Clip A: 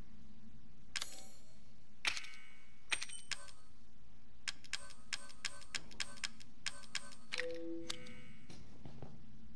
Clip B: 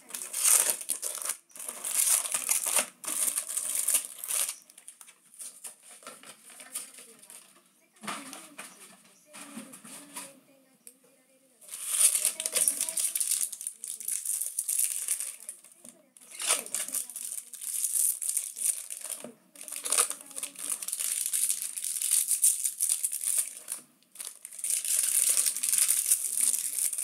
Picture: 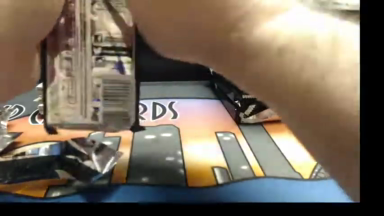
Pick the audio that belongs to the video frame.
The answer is B